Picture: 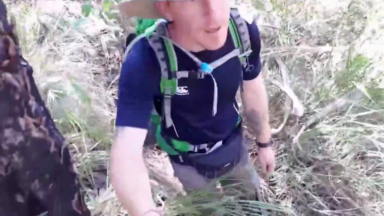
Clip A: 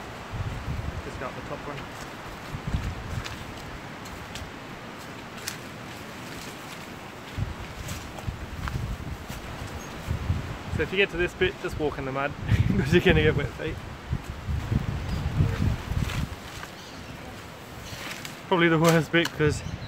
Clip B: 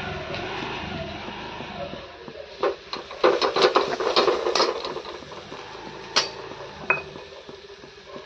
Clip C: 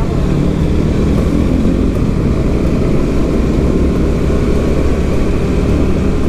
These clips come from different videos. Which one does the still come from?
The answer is A